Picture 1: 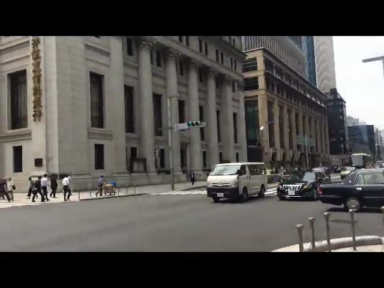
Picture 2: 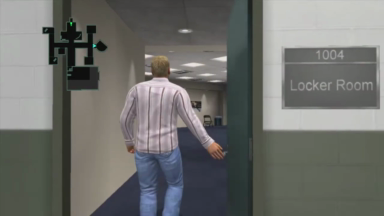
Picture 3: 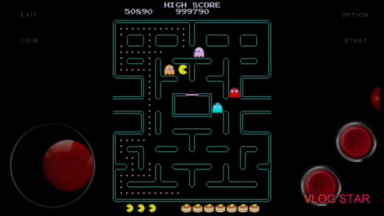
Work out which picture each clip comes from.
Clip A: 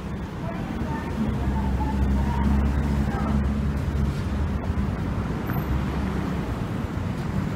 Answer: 1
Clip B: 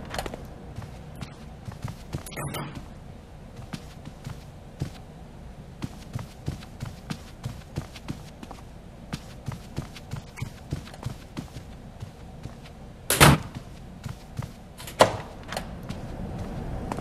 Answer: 2